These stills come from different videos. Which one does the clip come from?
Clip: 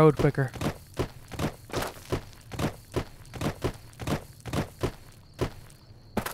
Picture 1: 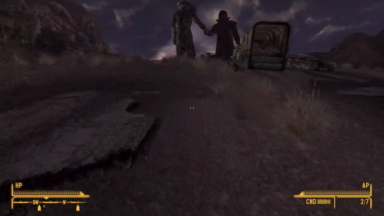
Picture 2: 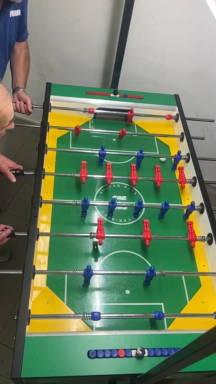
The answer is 1